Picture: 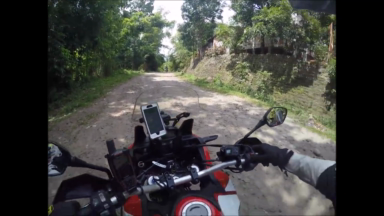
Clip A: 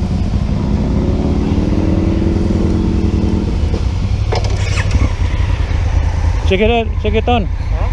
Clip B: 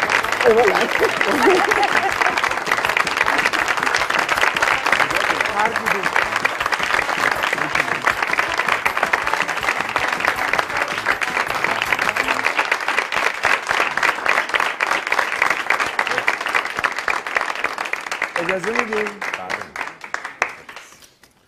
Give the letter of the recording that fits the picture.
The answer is A